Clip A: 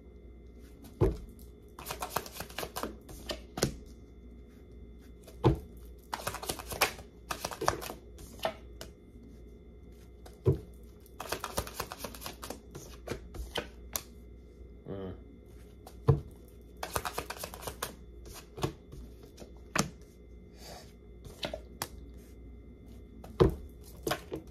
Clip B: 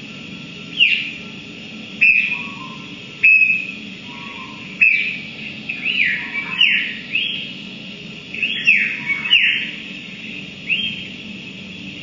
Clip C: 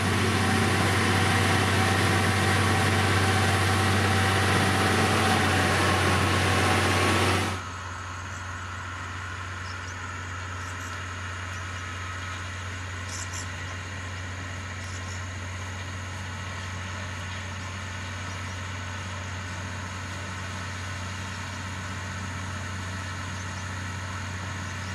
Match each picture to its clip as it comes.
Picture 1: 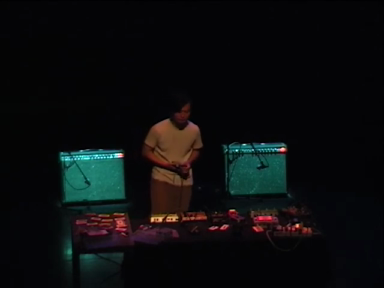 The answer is B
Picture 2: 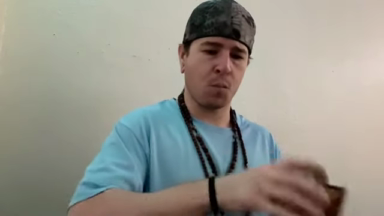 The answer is A